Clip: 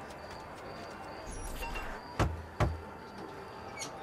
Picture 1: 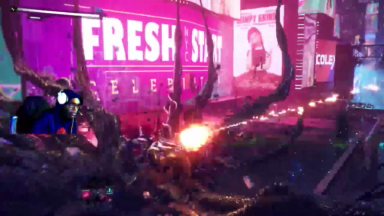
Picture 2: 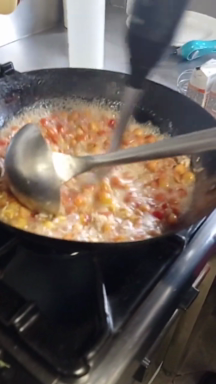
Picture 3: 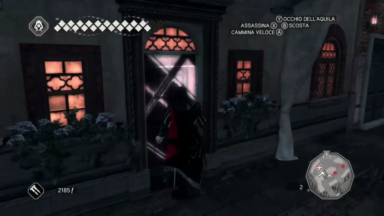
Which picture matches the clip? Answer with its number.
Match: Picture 3